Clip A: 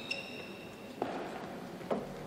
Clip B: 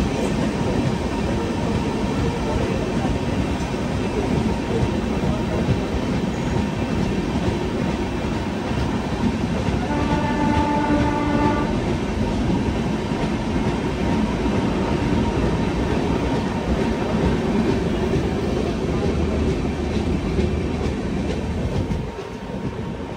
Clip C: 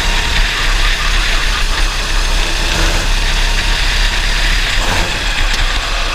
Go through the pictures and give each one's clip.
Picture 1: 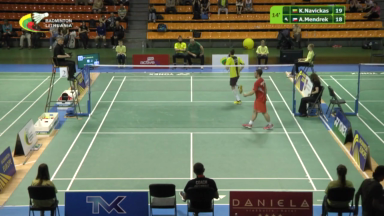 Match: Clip A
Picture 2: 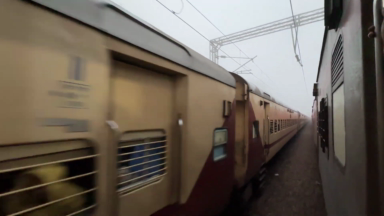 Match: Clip B